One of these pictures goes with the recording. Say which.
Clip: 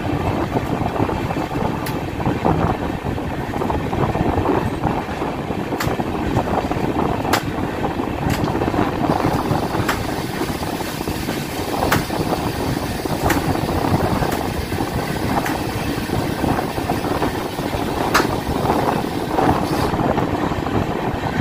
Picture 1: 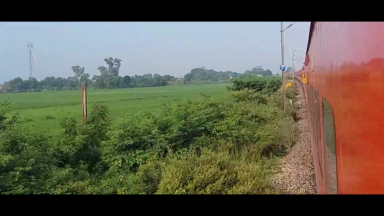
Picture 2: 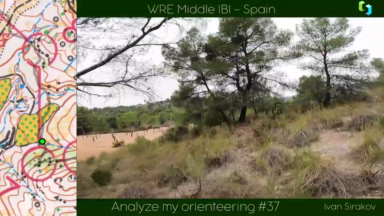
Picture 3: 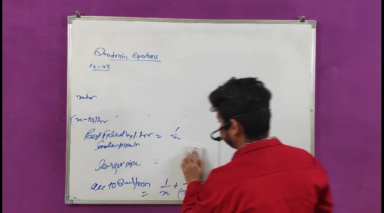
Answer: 1